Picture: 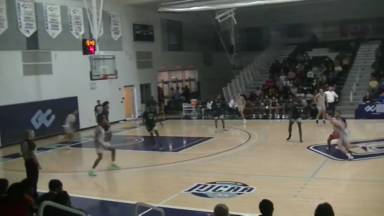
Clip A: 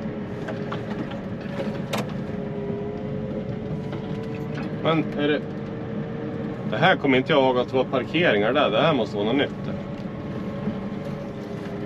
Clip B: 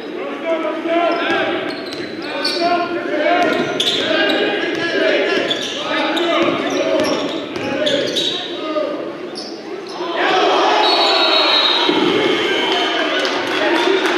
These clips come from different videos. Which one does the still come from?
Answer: B